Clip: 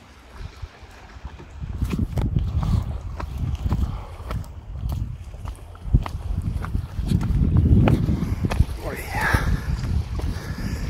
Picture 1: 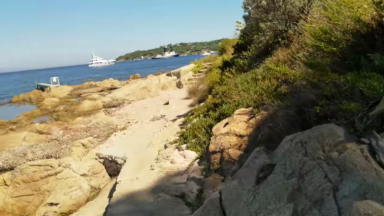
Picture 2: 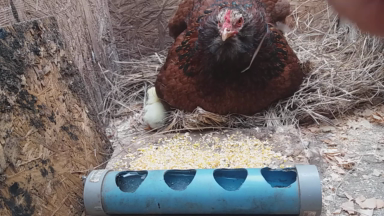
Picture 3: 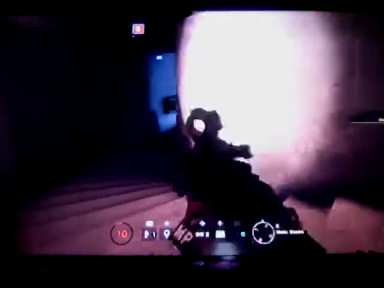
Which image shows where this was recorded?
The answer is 1